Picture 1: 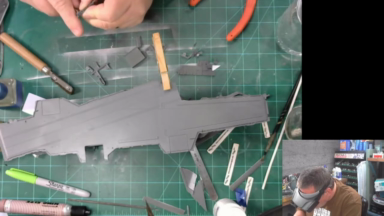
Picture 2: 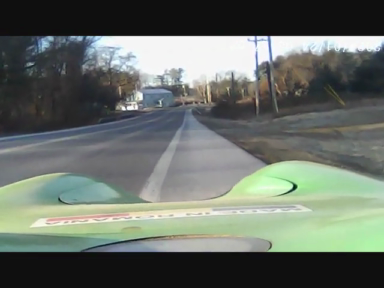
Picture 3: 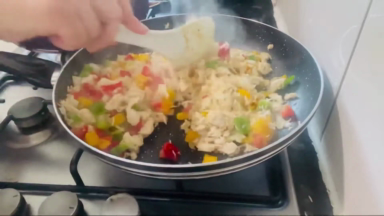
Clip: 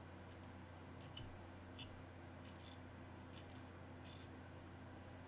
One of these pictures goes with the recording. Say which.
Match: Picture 1